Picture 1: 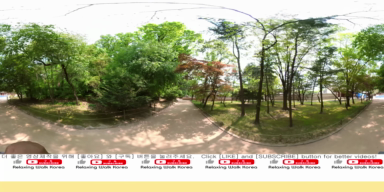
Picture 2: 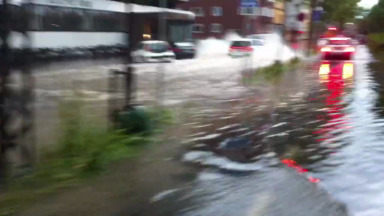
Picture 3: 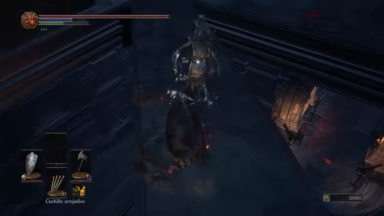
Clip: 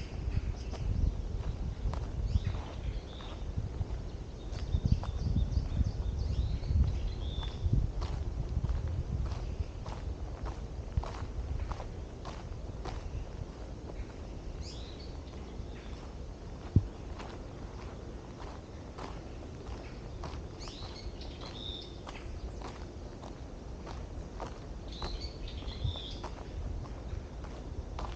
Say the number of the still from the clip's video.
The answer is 1